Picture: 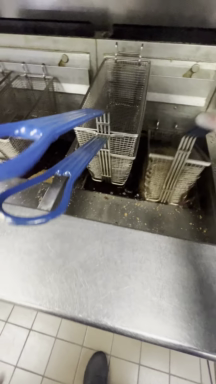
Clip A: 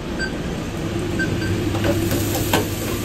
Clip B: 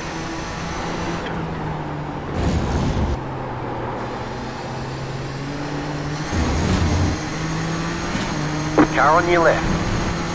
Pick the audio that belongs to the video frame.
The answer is A